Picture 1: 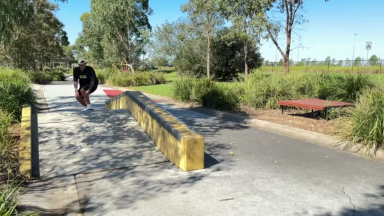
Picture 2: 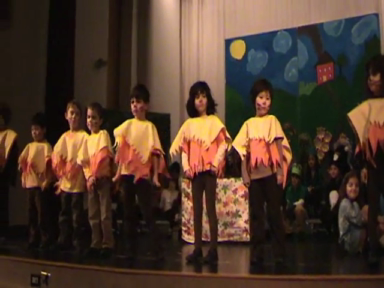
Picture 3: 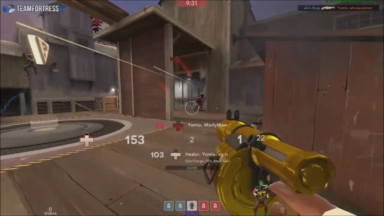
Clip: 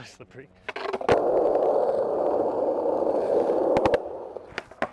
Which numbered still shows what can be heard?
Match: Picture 1